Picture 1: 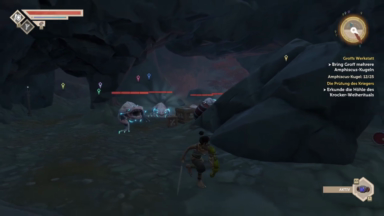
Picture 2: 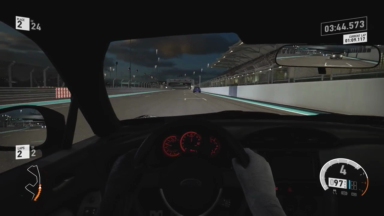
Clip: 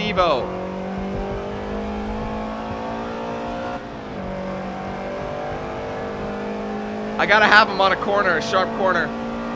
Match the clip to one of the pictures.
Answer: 2